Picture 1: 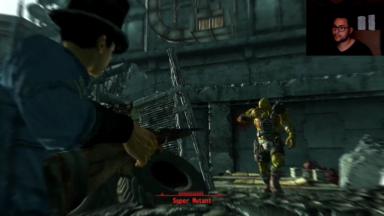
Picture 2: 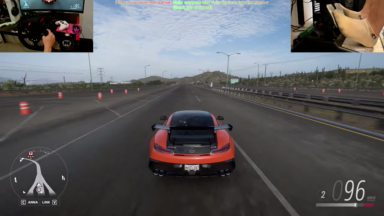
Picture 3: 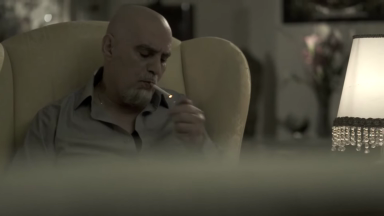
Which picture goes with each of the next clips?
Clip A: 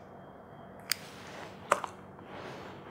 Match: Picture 3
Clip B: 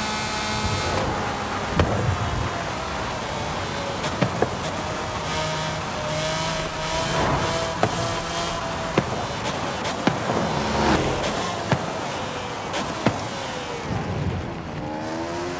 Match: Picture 2